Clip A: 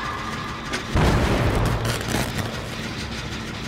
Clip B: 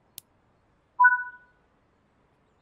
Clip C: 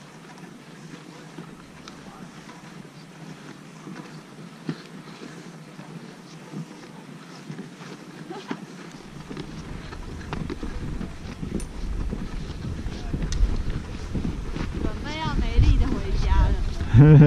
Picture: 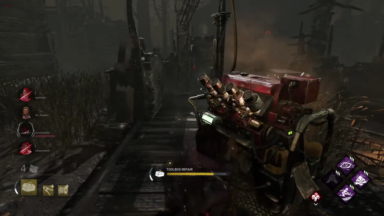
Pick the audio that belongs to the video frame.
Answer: A